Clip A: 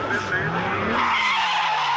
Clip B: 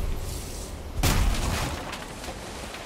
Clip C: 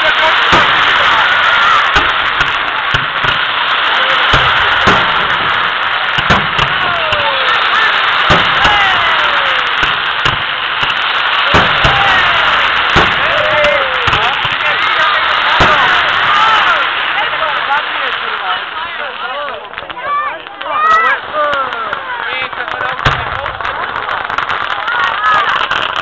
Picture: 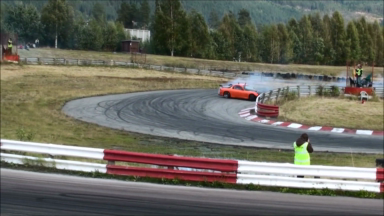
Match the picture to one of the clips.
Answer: A